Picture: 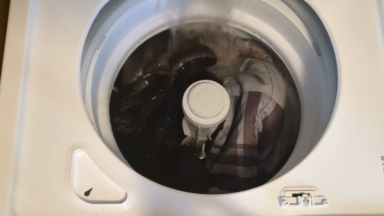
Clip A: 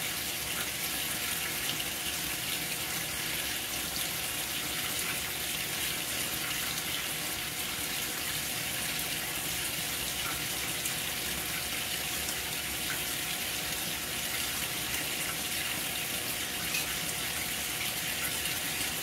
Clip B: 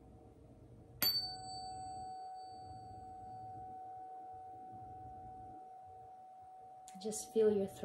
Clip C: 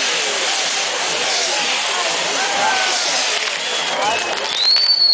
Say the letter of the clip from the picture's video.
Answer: A